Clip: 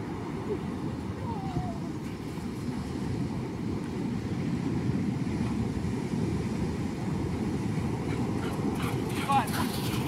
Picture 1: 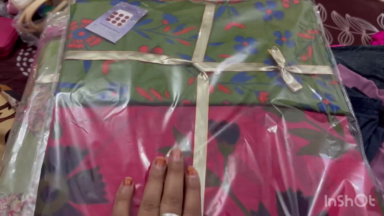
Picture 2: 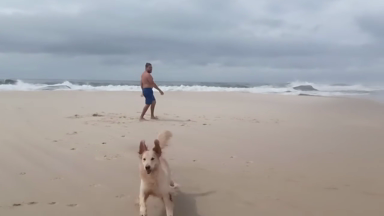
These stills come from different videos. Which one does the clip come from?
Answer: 2